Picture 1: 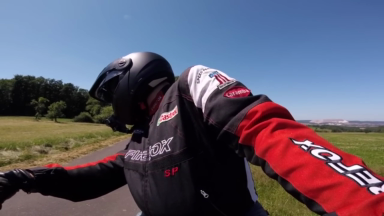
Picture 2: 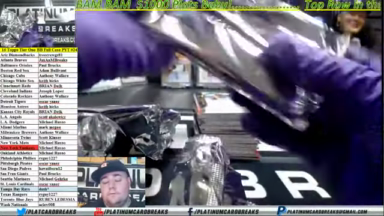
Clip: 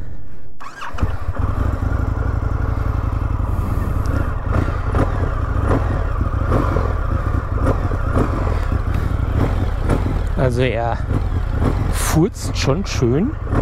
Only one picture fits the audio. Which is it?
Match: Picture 1